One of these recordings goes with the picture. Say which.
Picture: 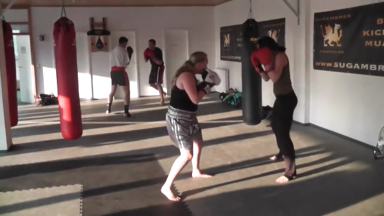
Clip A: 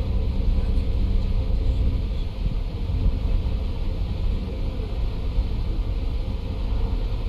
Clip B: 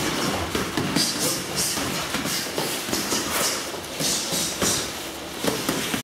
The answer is B